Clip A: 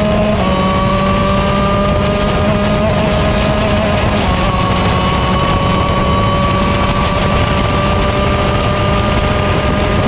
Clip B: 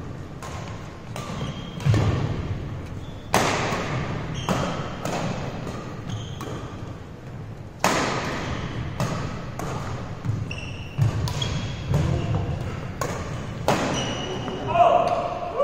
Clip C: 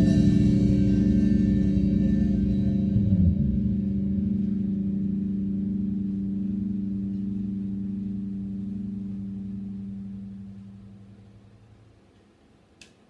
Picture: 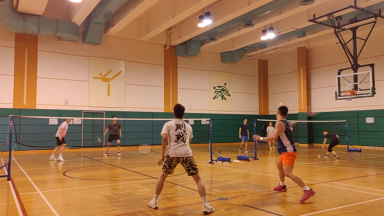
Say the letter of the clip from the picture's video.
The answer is B